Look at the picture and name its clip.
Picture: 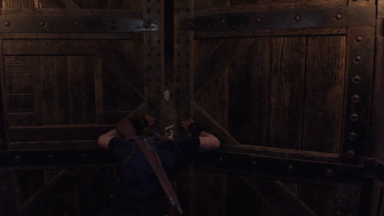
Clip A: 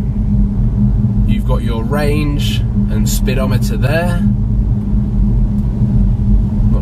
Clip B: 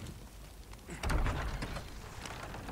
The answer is B